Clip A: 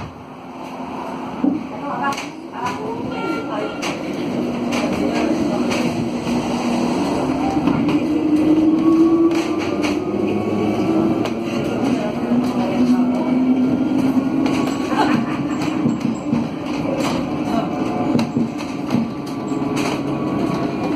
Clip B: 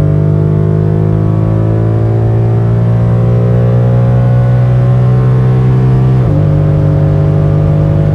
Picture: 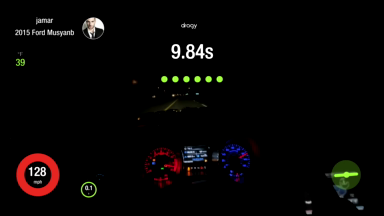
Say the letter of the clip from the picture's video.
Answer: B